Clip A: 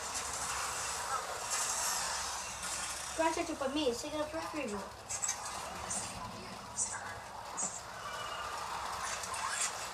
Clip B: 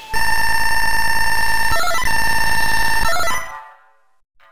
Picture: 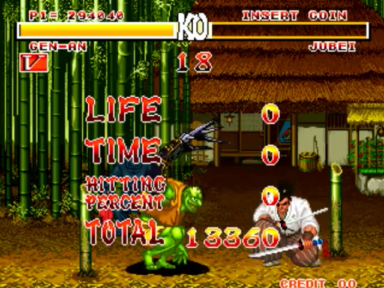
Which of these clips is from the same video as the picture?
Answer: B